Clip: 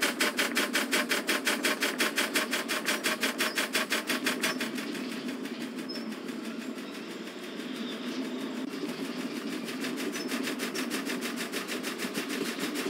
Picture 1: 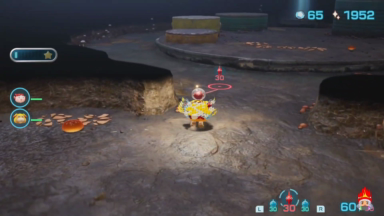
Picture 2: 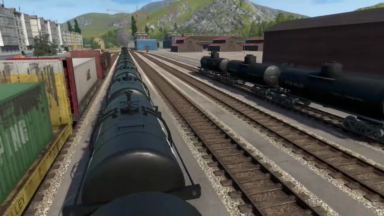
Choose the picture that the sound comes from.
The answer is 2